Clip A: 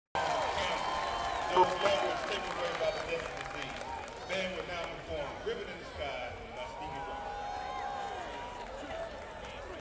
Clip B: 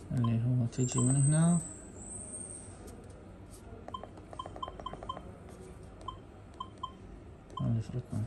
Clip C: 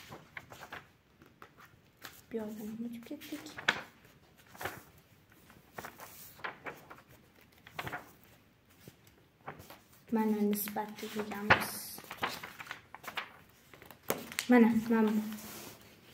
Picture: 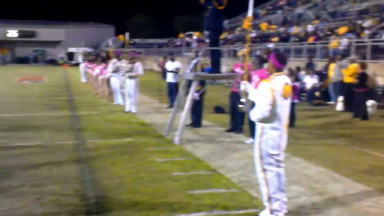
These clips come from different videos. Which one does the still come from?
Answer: A